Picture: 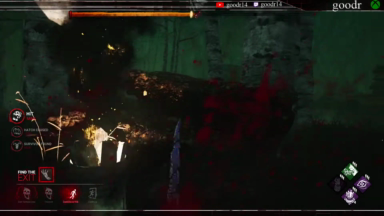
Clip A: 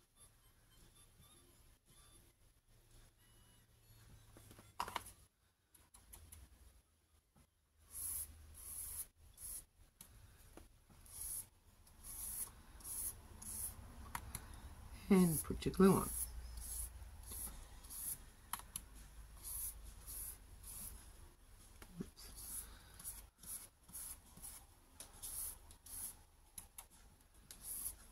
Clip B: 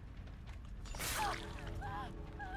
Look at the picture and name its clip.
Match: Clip B